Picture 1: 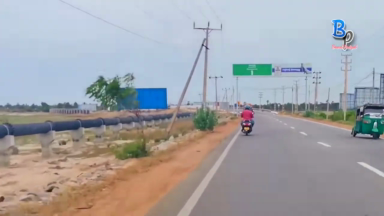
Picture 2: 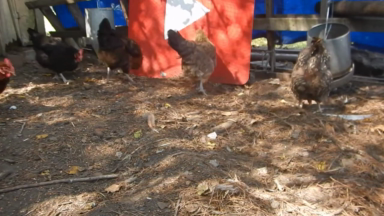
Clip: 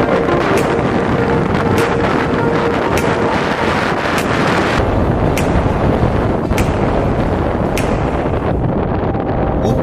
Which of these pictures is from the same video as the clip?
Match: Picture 1